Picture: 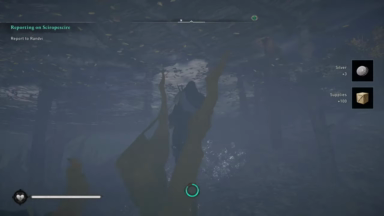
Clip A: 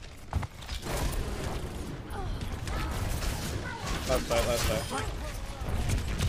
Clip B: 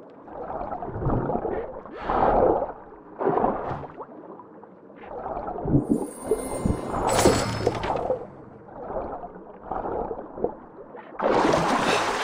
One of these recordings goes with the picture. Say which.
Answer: B